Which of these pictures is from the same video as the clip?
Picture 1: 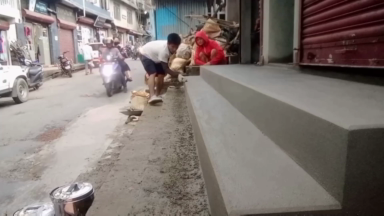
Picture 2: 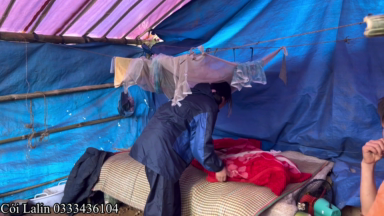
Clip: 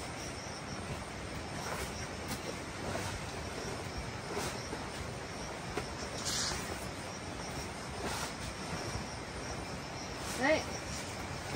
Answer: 2